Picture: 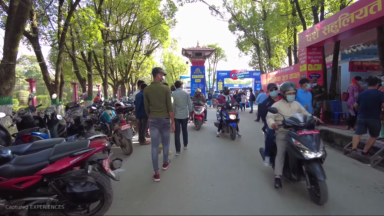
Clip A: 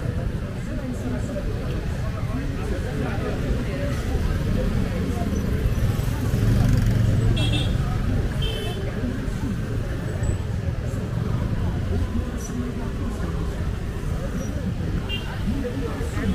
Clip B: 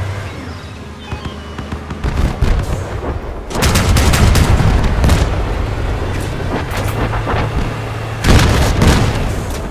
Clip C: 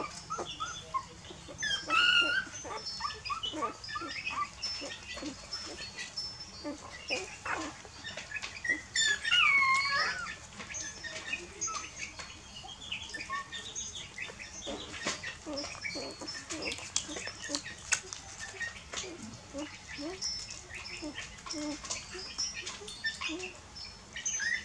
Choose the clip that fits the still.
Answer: A